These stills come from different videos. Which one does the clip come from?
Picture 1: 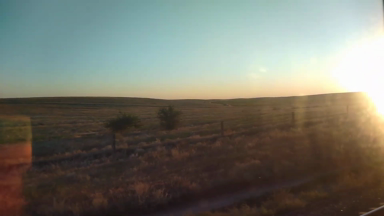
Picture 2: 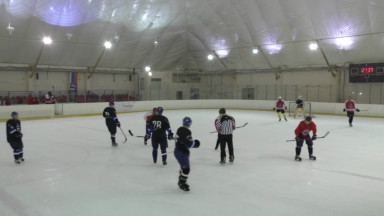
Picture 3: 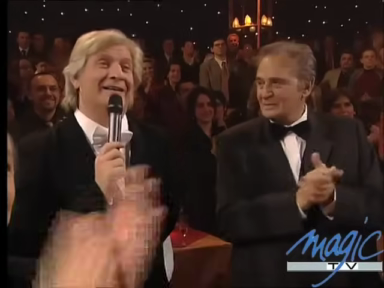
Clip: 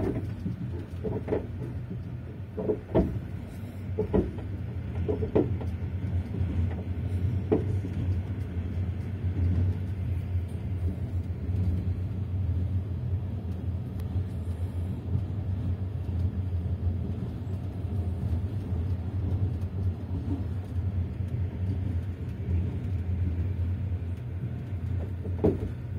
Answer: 1